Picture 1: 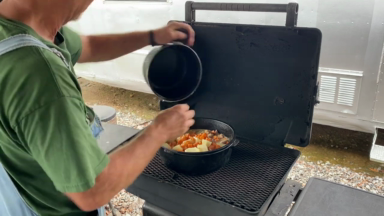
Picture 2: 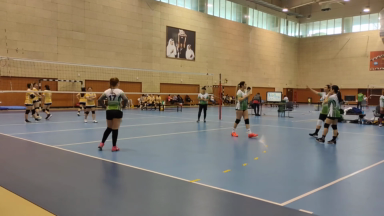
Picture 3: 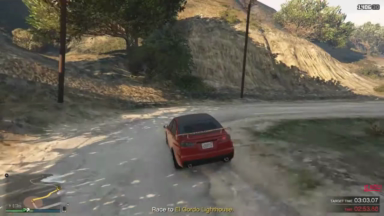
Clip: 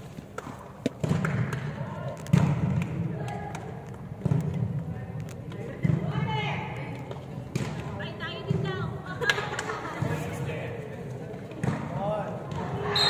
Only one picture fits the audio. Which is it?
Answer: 2